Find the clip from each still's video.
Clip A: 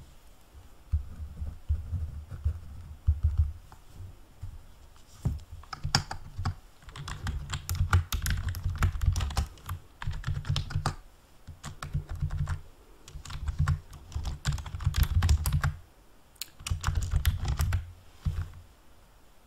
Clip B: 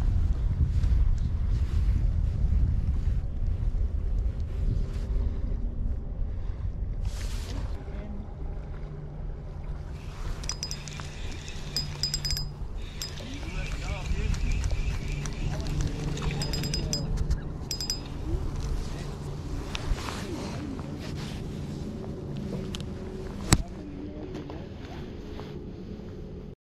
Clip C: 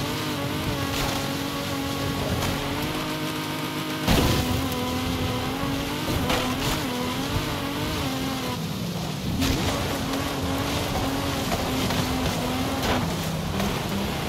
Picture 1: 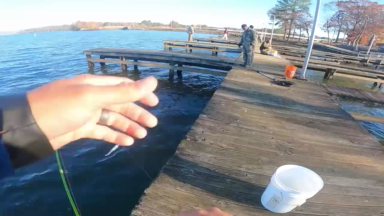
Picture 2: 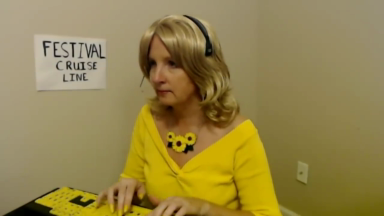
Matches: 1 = B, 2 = A